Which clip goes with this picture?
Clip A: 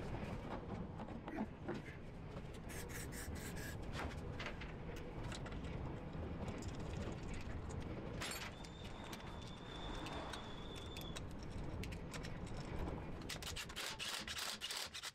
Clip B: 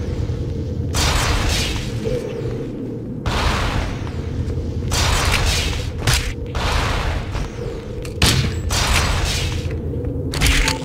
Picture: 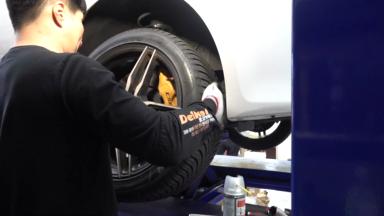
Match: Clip A